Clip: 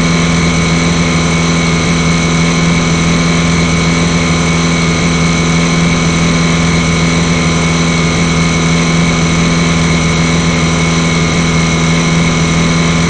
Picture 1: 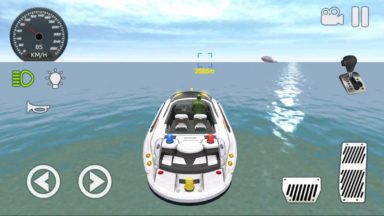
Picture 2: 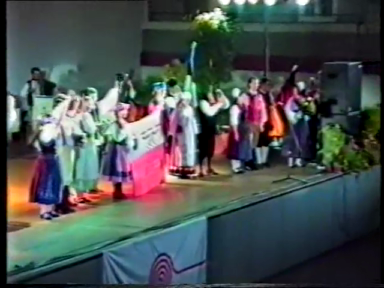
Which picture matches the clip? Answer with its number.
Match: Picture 1